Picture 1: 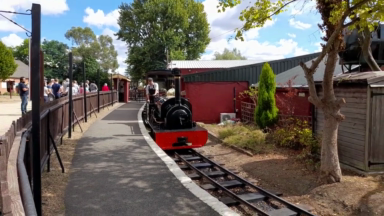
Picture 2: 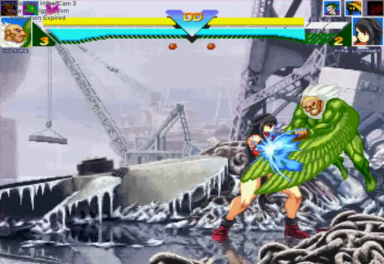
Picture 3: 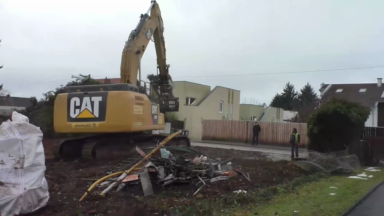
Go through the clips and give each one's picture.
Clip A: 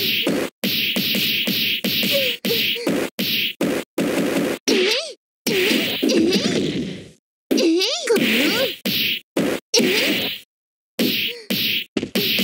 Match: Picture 2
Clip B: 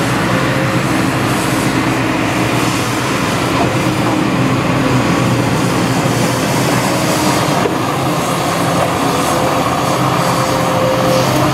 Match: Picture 3